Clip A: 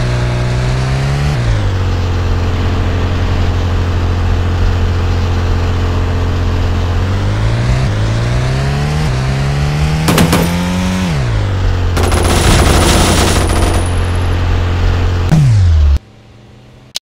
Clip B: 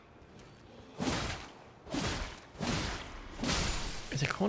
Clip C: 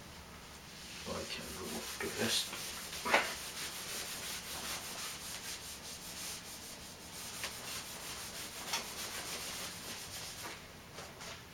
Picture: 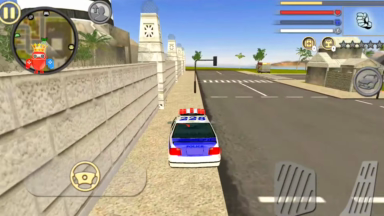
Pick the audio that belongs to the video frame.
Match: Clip A